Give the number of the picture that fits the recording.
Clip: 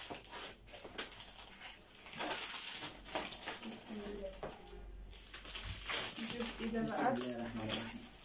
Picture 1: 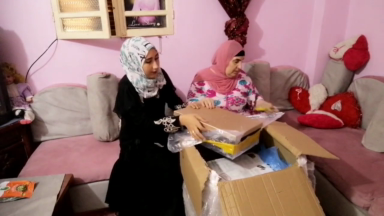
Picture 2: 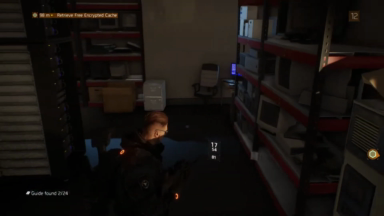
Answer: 1